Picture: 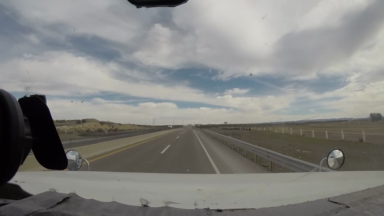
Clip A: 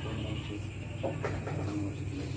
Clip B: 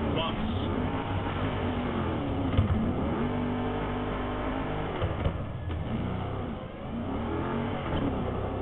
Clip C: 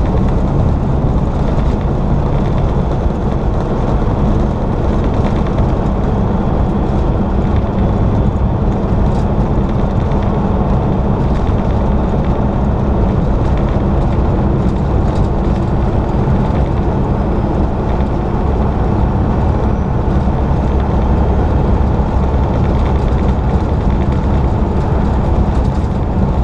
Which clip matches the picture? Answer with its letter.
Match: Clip C